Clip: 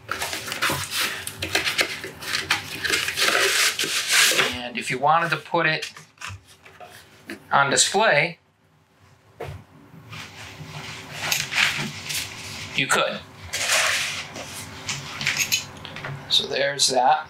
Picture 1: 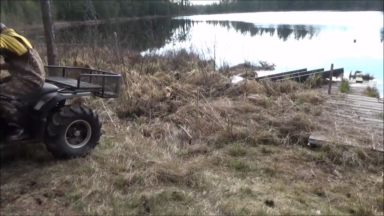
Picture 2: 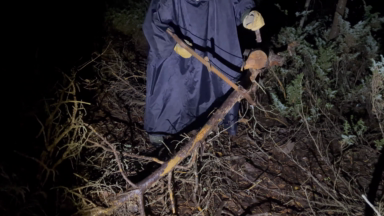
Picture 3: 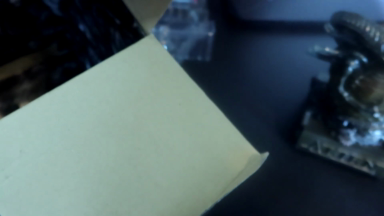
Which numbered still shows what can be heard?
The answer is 3